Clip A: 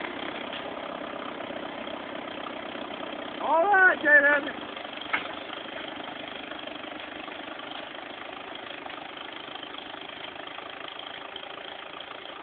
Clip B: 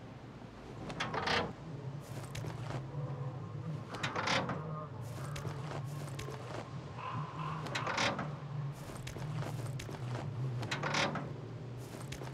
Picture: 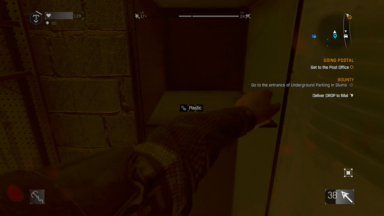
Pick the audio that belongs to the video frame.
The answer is B